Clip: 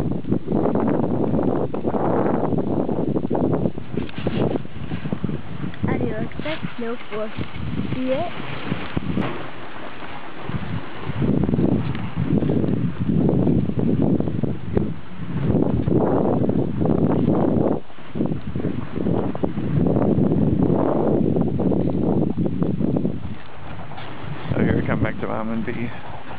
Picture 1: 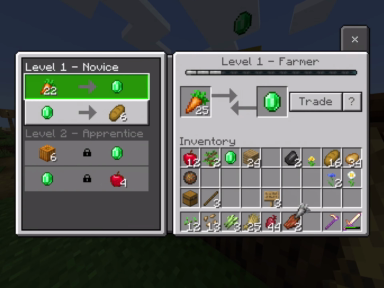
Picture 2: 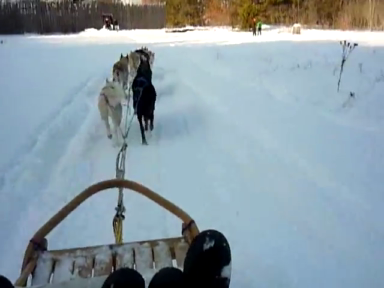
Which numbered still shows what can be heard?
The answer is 2